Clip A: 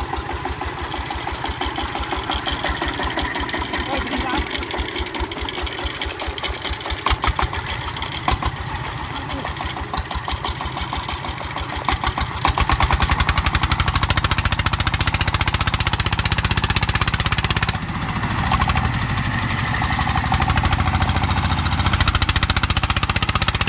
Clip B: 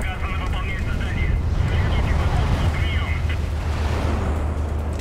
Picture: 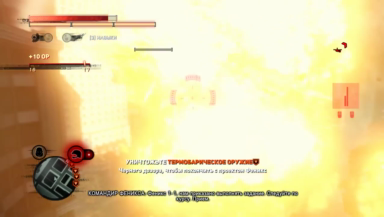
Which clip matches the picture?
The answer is B